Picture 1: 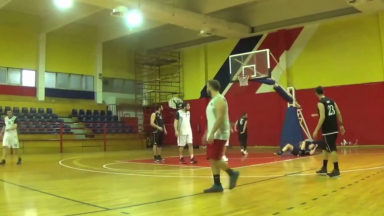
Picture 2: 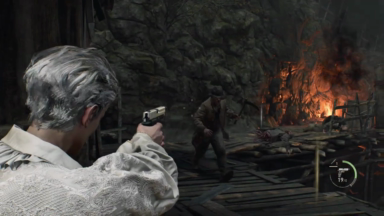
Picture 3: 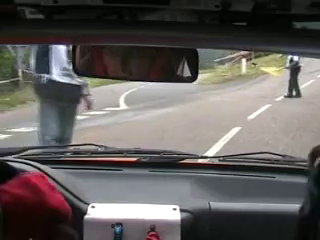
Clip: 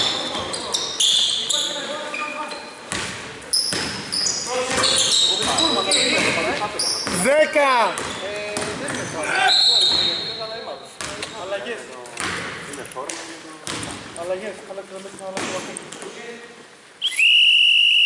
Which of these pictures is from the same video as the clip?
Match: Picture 1